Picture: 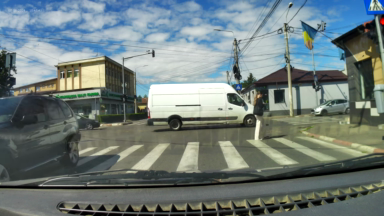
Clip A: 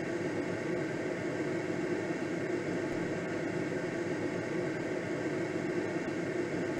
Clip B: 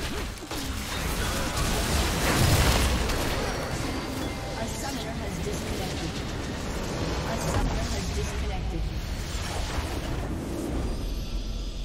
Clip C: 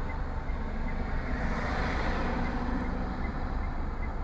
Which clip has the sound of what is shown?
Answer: C